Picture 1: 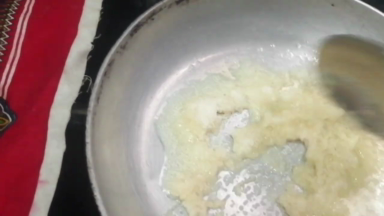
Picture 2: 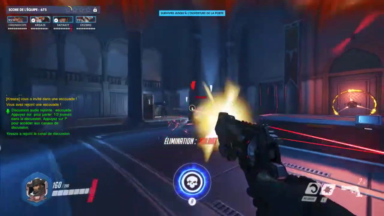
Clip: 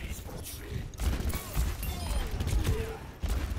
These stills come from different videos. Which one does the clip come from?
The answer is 2